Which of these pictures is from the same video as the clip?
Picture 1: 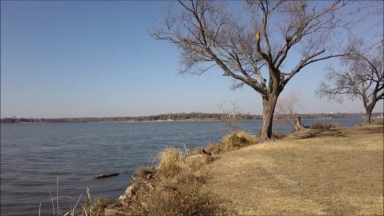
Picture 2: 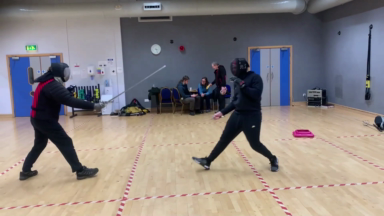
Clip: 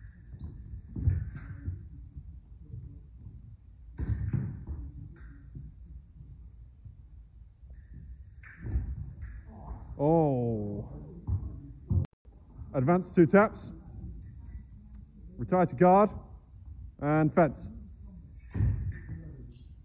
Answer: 2